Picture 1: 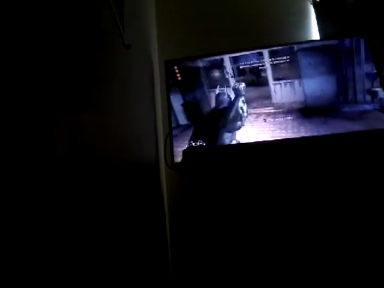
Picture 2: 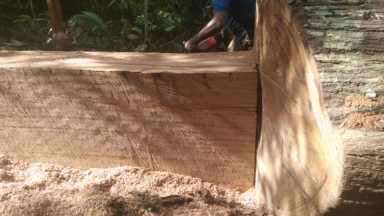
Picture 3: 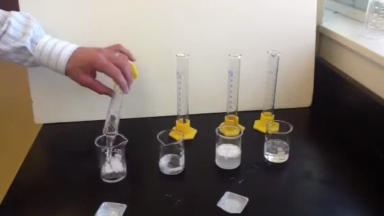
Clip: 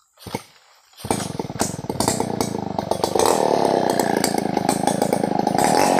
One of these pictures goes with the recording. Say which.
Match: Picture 2